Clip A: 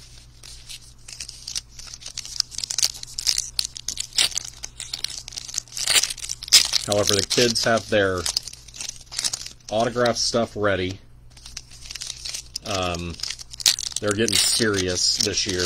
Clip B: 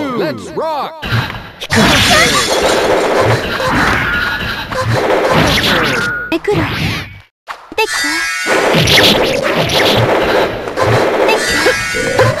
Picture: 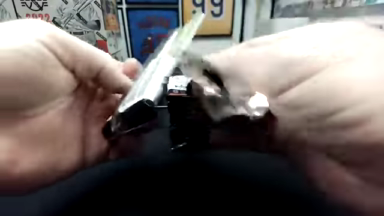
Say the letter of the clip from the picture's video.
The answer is A